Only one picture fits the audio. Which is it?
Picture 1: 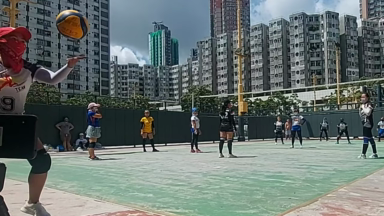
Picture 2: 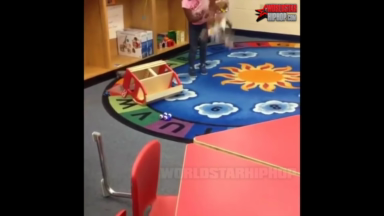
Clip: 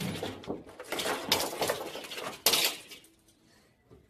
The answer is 2